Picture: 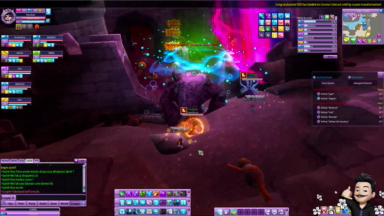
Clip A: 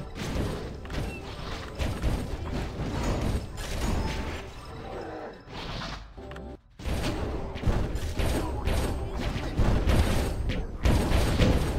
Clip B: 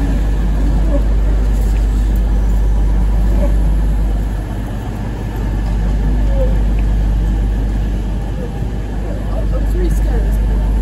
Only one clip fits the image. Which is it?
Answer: A